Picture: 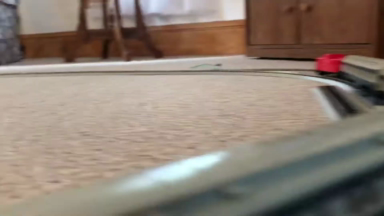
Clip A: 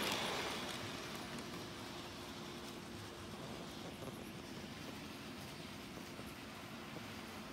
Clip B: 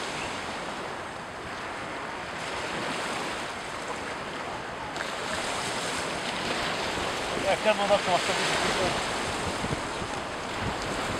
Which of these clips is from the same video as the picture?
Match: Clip A